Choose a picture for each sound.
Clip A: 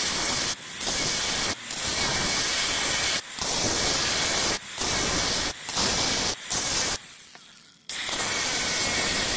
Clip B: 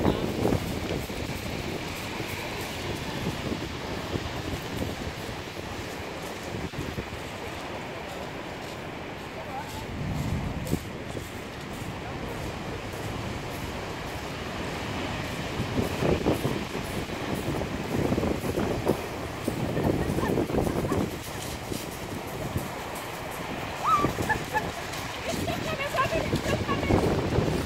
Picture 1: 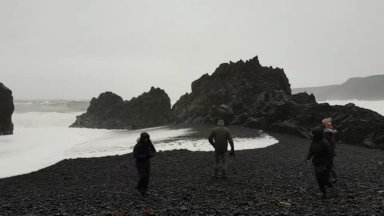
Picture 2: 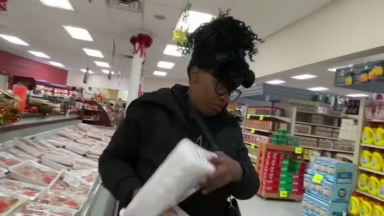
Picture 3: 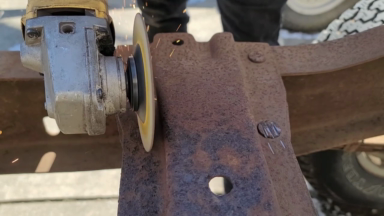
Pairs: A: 3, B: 1